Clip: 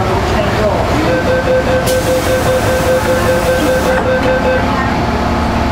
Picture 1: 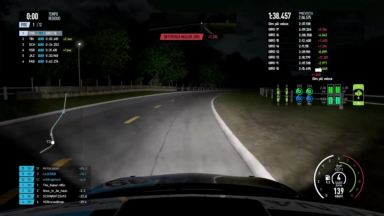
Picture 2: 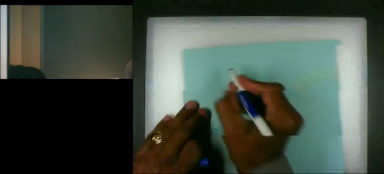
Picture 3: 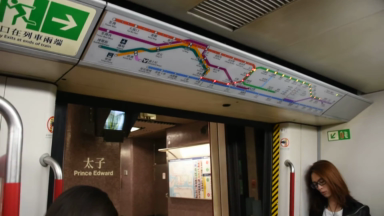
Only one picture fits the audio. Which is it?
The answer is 3